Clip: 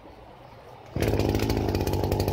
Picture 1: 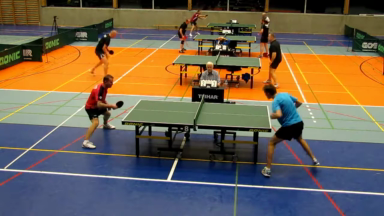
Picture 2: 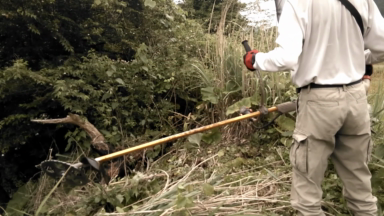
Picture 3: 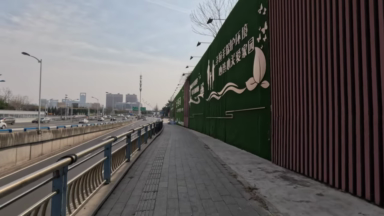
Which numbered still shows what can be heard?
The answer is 2